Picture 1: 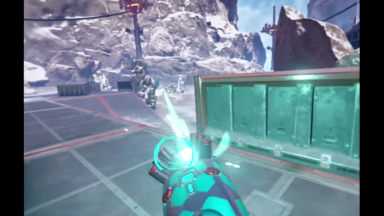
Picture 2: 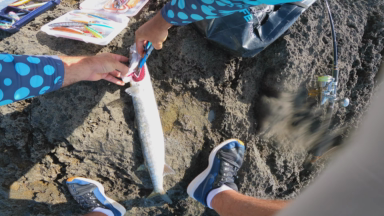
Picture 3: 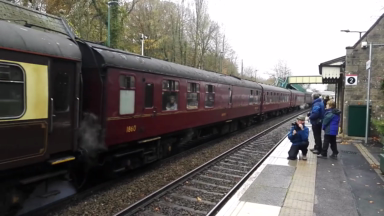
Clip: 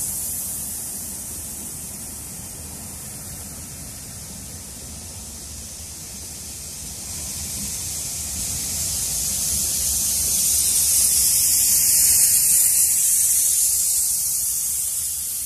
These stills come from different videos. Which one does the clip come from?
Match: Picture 3